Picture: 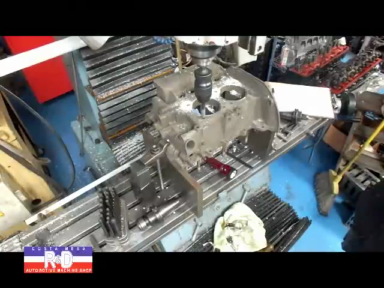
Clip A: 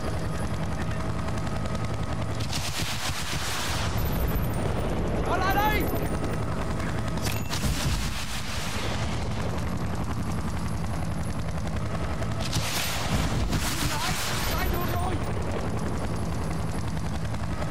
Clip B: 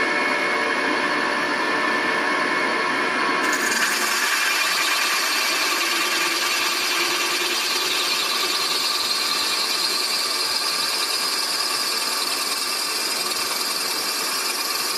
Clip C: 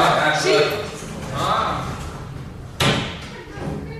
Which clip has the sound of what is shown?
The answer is B